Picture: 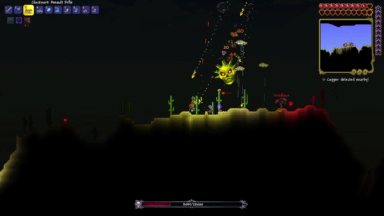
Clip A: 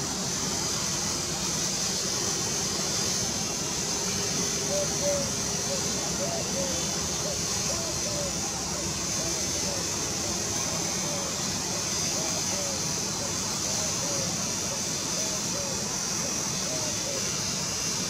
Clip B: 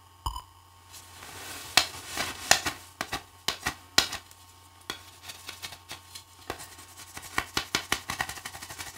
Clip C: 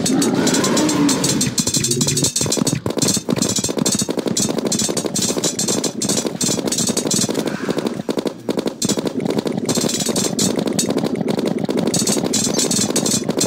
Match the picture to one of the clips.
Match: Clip C